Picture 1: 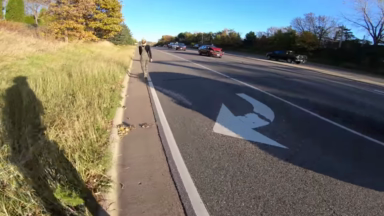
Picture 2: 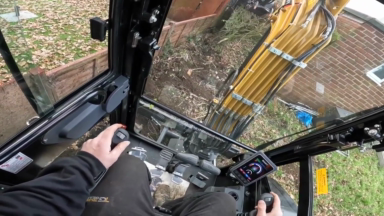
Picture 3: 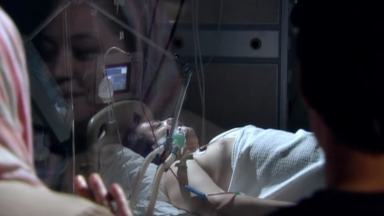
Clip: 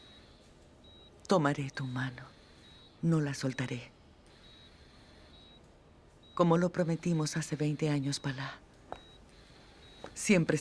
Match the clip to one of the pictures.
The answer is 3